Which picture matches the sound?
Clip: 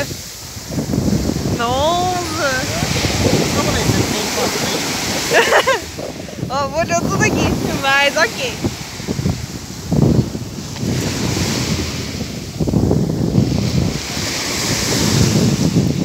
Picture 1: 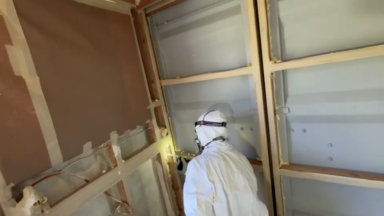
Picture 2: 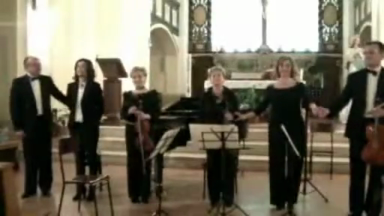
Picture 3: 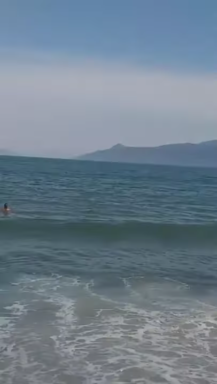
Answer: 3